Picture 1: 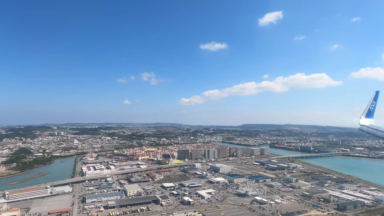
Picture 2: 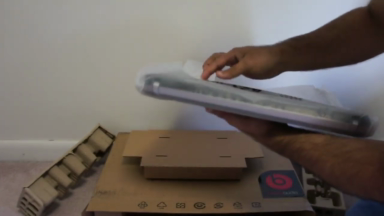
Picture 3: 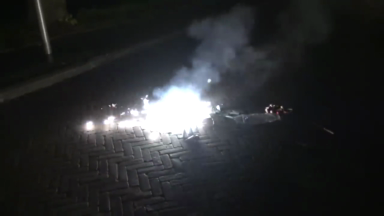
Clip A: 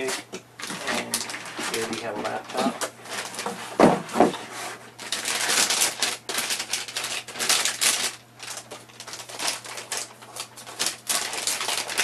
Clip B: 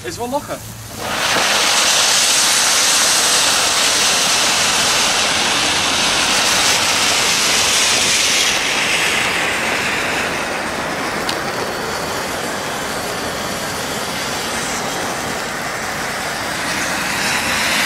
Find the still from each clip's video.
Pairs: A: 2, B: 3